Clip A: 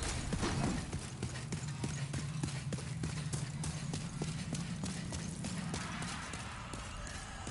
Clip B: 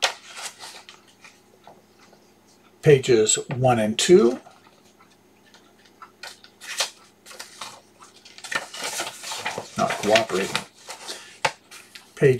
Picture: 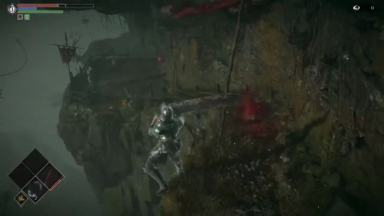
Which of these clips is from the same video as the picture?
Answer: A